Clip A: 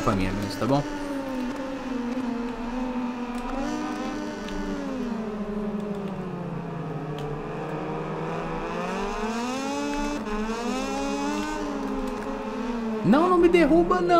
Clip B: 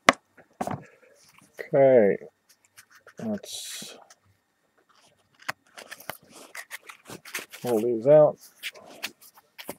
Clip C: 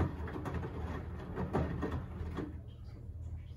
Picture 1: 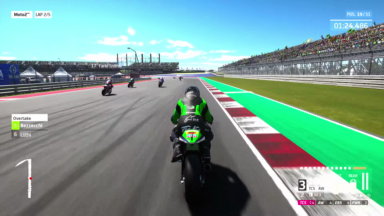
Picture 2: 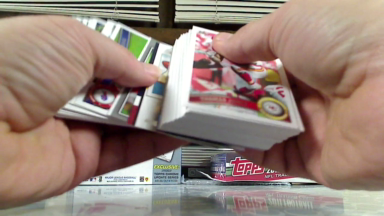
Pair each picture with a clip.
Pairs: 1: A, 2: B